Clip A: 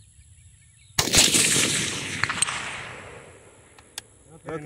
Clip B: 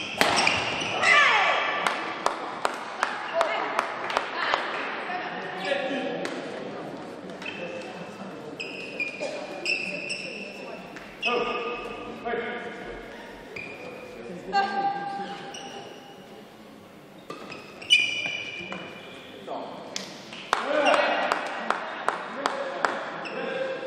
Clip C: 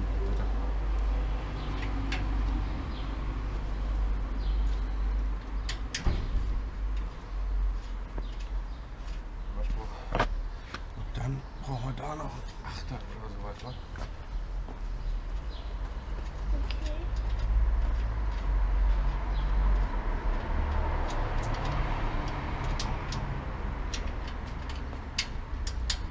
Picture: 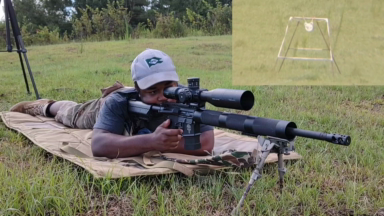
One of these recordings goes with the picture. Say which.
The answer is A